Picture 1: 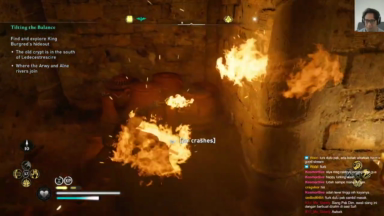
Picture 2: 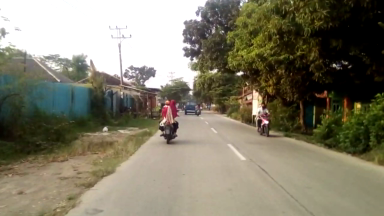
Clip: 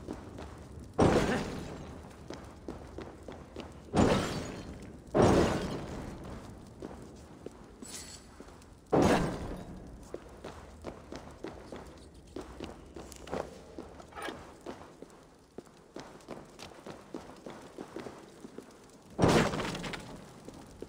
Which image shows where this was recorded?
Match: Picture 1